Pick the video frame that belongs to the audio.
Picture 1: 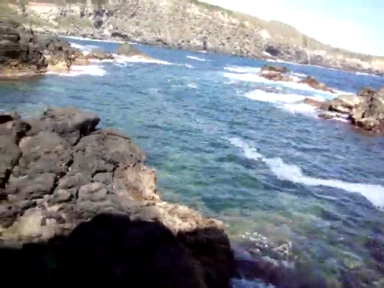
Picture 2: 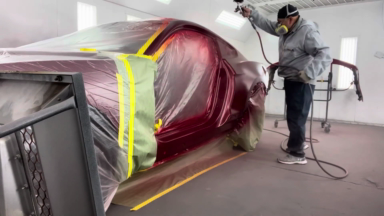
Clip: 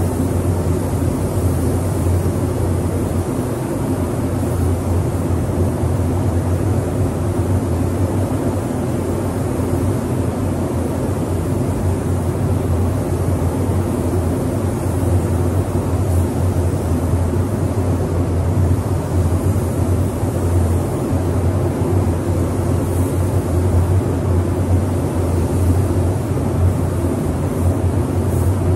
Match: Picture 2